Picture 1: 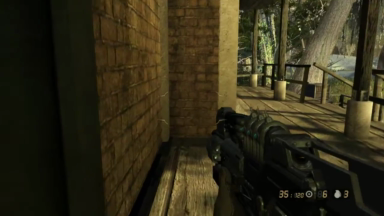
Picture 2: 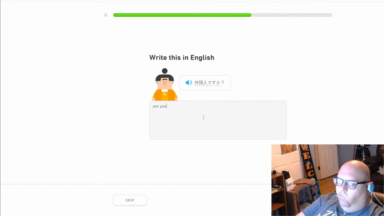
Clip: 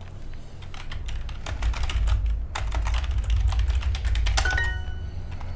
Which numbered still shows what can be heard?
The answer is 2